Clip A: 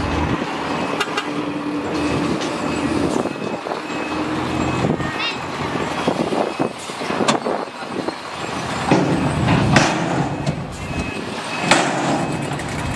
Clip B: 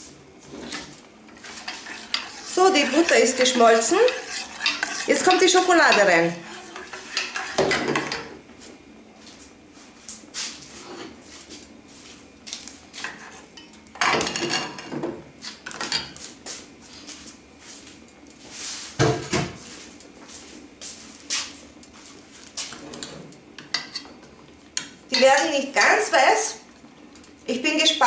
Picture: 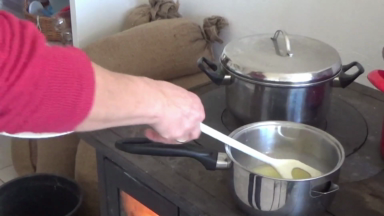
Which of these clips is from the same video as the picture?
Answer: B